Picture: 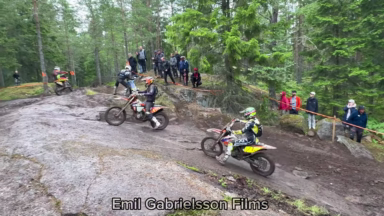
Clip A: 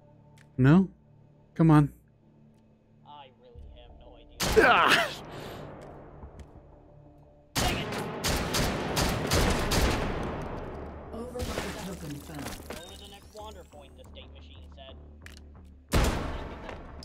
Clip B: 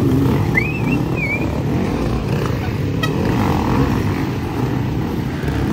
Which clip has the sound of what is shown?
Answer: B